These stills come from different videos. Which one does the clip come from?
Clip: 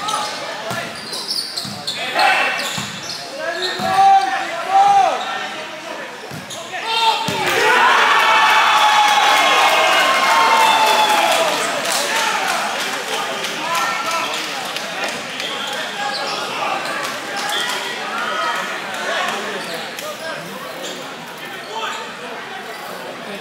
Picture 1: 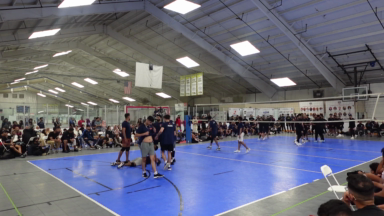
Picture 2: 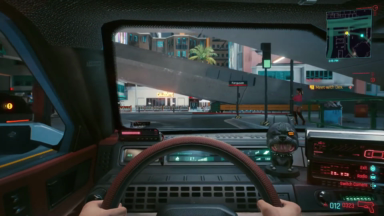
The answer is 1